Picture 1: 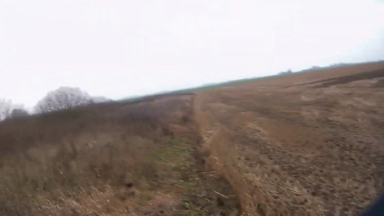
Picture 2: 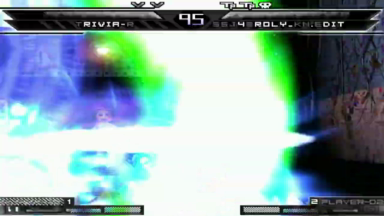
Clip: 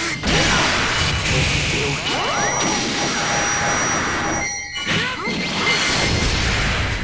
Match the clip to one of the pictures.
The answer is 2